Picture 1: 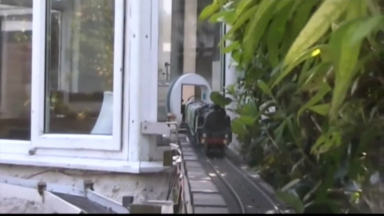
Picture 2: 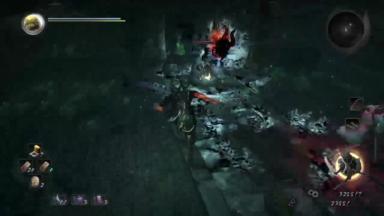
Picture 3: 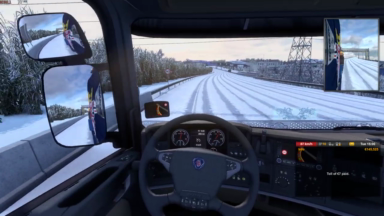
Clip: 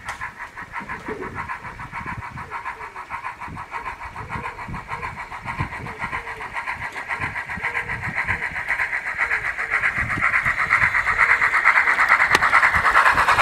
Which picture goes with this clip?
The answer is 1